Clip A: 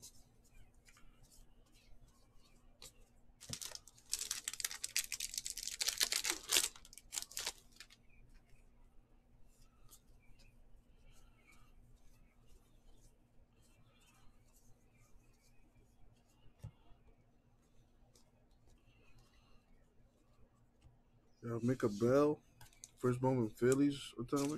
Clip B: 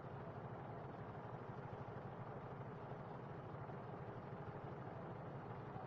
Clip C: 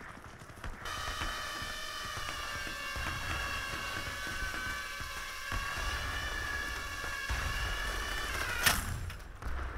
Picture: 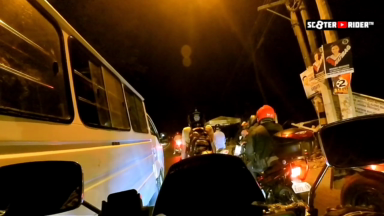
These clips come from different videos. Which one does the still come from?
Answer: B